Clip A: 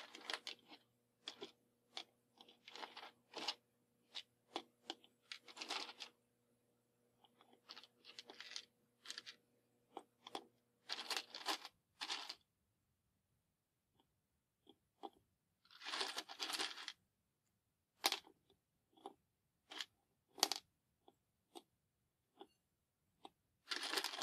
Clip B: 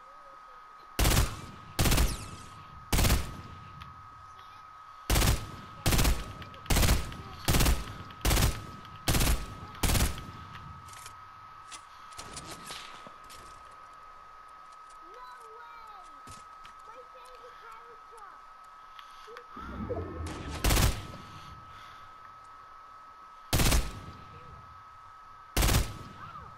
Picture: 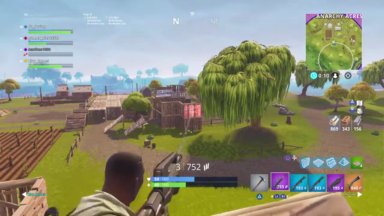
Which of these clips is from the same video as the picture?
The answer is B